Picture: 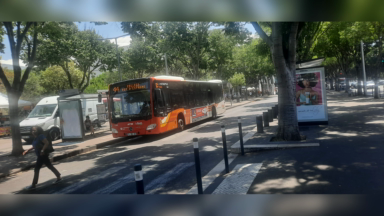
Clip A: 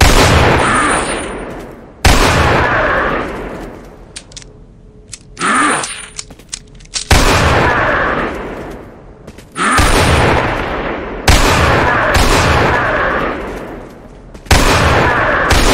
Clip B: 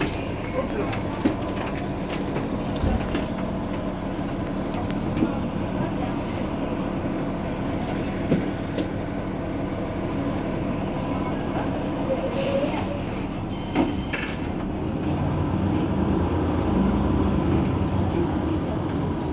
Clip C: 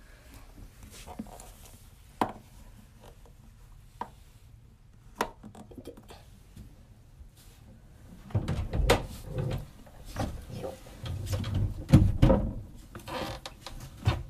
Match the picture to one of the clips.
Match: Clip B